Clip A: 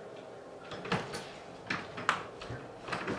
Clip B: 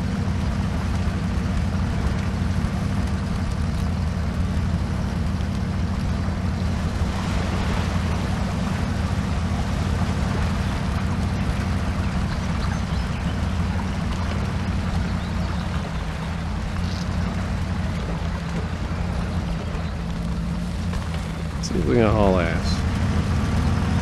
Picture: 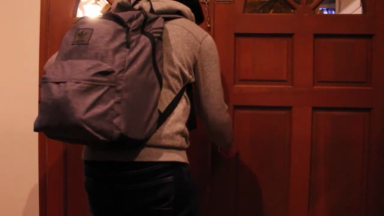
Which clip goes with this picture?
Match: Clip A